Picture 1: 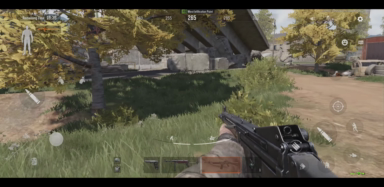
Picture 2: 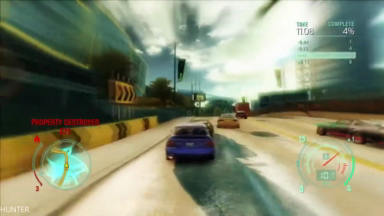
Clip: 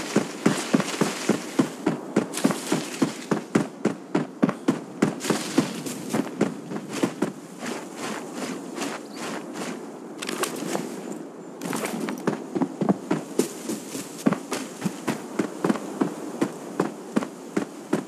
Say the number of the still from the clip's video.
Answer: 1